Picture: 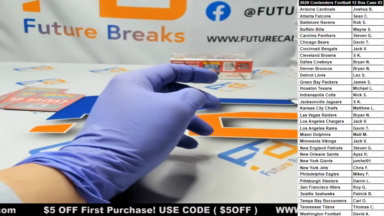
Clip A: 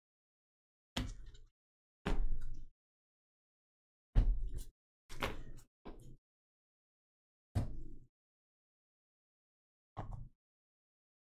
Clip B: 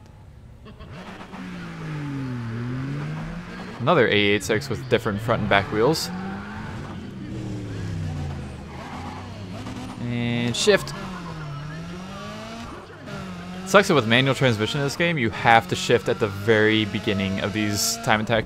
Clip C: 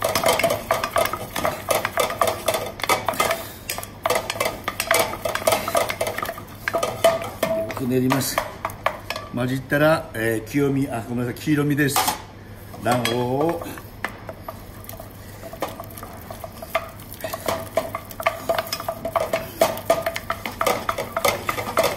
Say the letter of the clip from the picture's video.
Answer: A